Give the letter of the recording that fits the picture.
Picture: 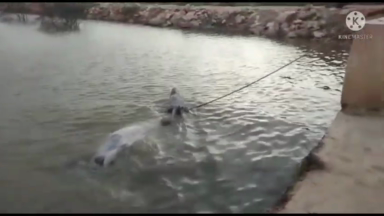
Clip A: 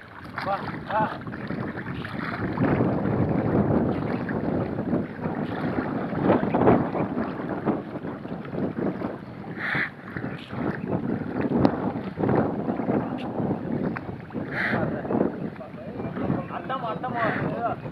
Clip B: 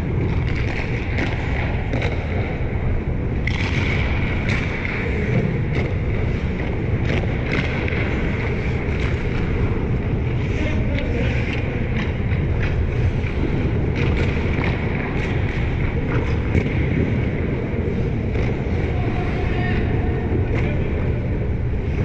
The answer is A